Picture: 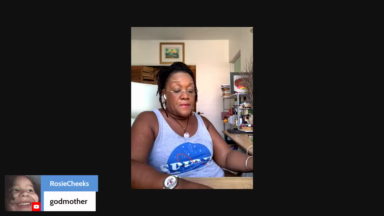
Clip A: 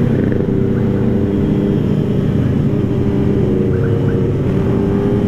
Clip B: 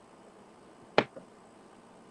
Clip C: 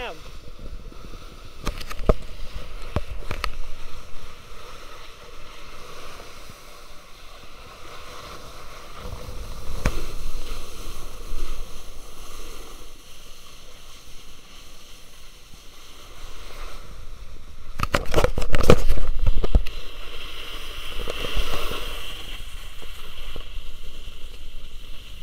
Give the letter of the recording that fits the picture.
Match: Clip B